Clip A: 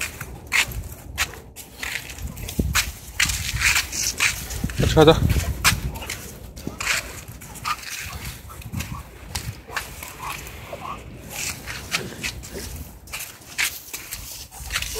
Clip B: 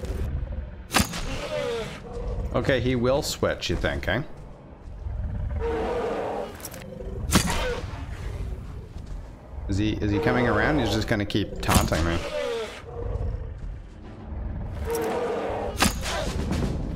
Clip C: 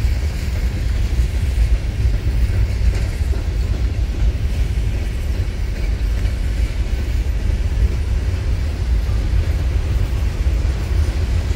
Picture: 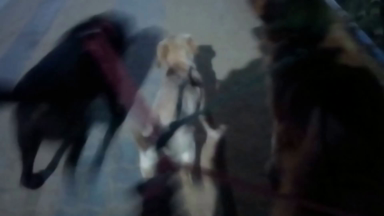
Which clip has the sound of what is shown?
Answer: A